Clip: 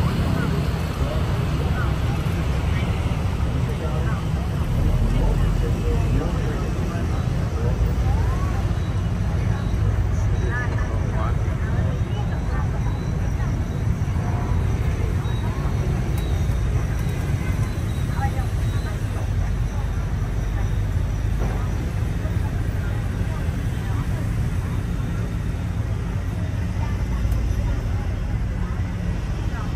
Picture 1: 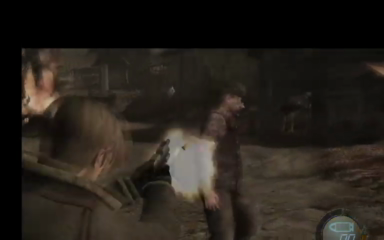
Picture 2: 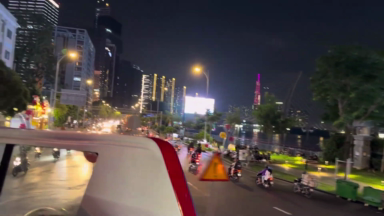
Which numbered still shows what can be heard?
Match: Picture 2